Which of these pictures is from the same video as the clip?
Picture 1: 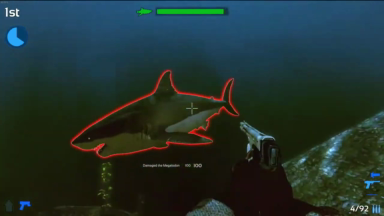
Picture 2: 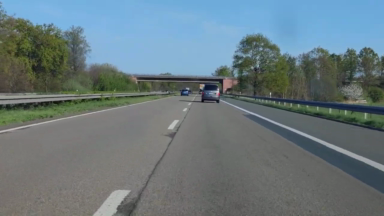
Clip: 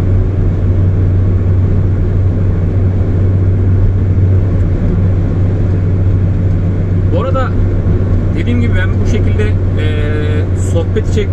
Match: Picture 2